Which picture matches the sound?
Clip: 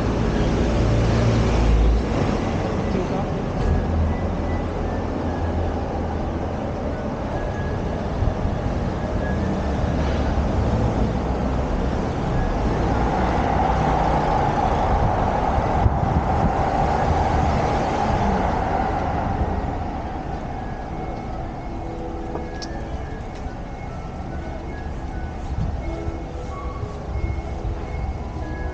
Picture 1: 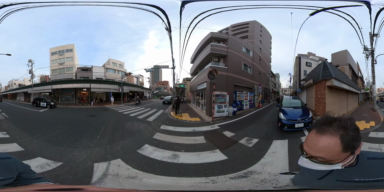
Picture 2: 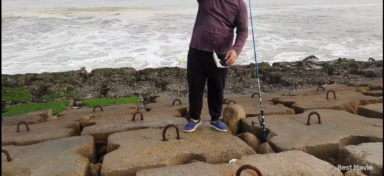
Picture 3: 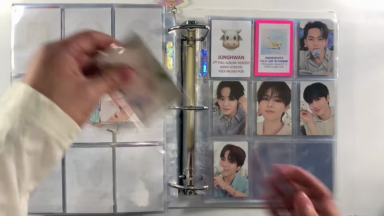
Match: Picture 1